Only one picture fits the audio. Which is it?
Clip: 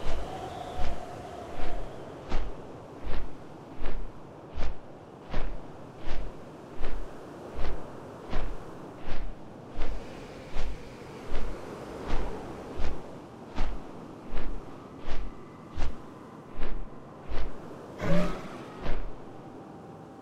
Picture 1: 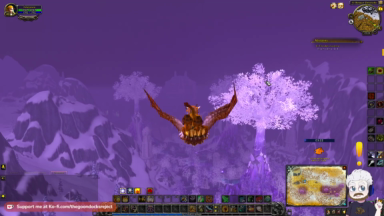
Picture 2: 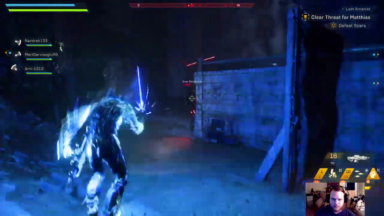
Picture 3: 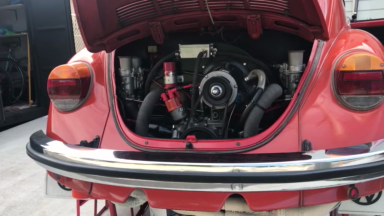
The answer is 1